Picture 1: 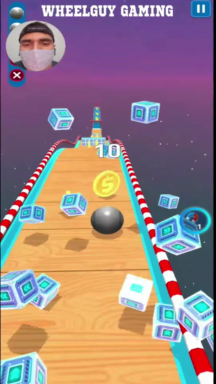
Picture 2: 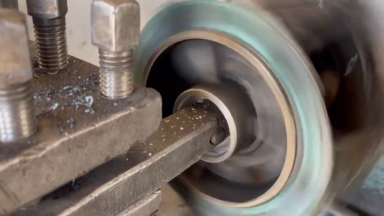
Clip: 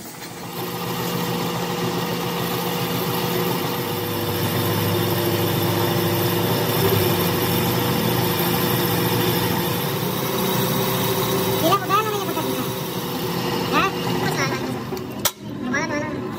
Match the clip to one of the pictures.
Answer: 2